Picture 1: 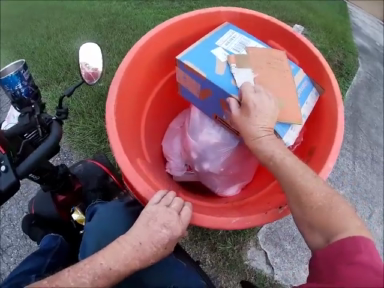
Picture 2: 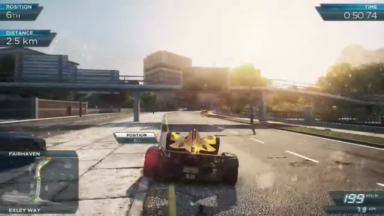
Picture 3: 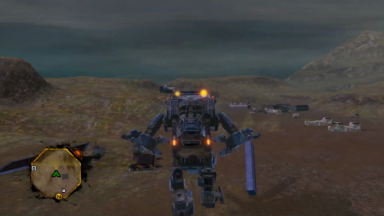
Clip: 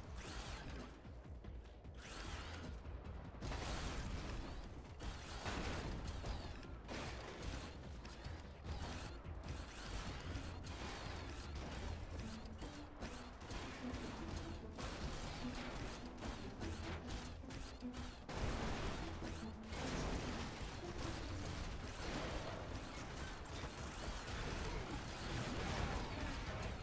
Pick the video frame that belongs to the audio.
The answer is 3